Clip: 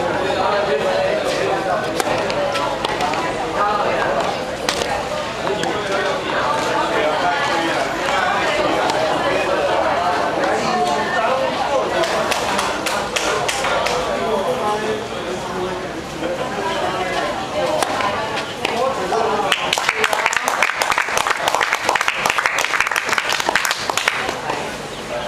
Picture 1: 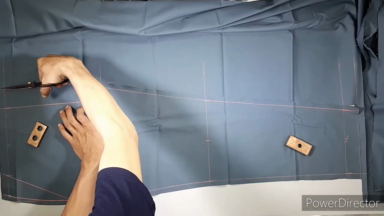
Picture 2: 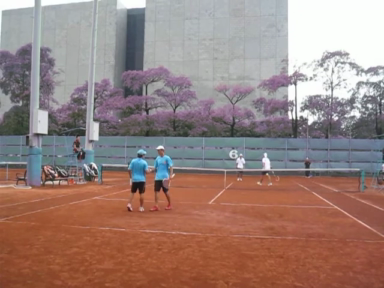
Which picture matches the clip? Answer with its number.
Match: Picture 2